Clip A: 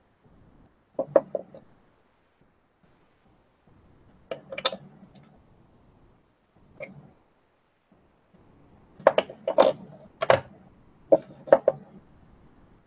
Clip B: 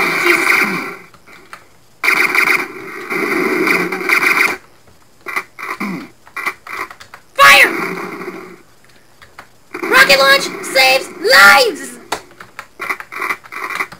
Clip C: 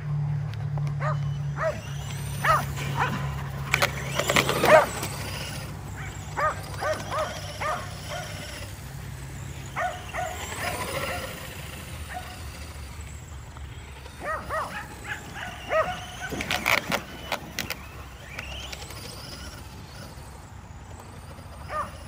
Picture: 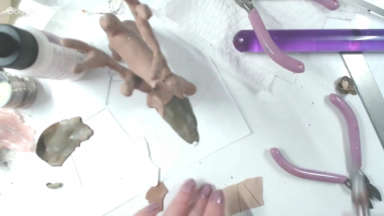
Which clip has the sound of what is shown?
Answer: A